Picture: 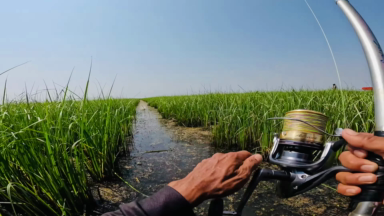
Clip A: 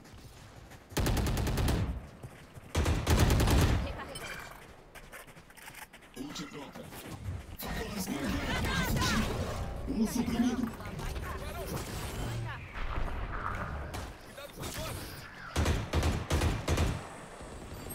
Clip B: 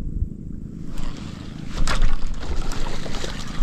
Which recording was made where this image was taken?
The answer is B